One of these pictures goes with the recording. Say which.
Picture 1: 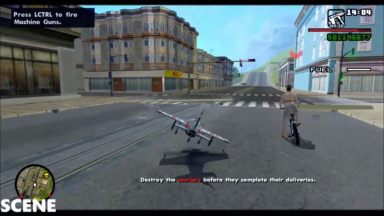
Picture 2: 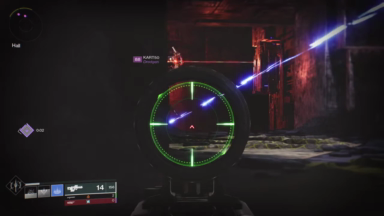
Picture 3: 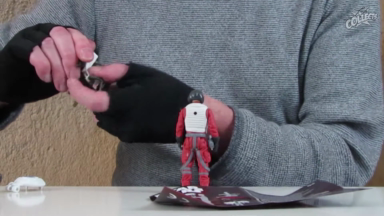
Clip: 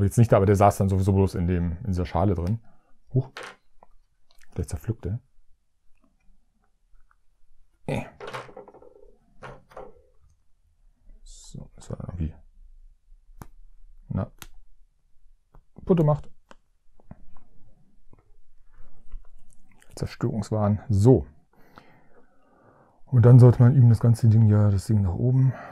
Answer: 3